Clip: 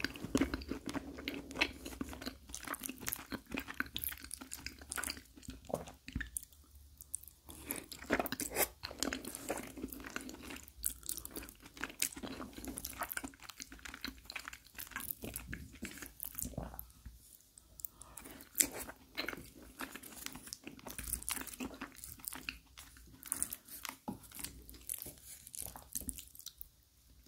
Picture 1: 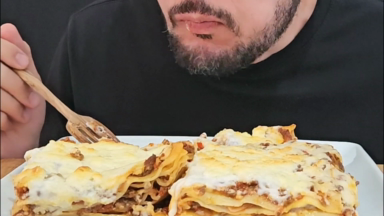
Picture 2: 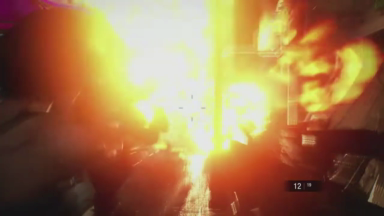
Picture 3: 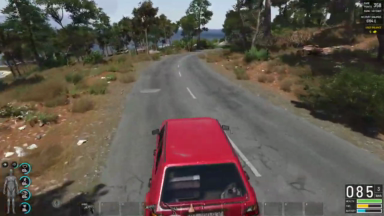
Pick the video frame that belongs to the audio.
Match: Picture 1